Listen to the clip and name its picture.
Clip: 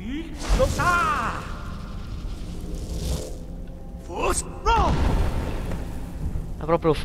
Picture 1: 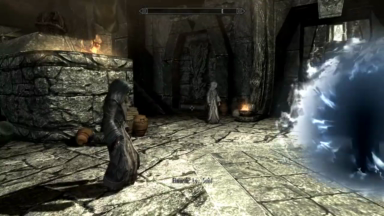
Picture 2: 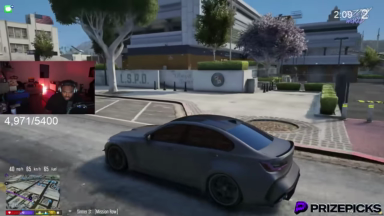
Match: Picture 1